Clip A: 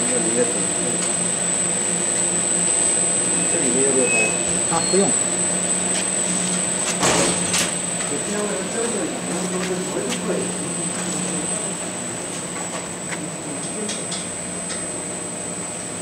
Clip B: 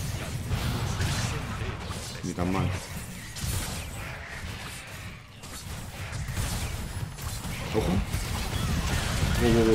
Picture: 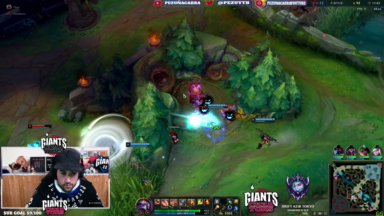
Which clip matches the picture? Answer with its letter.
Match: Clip B